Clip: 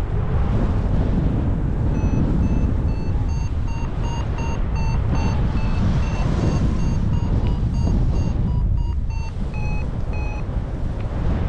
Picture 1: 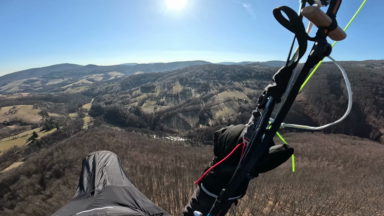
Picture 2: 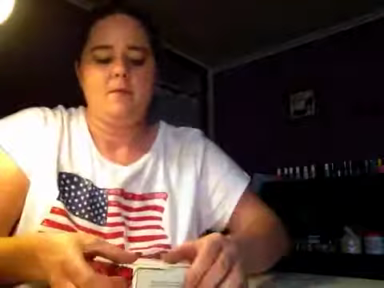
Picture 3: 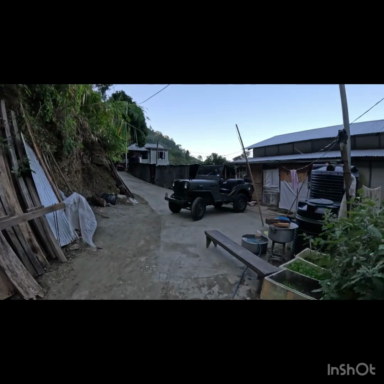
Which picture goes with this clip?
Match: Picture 1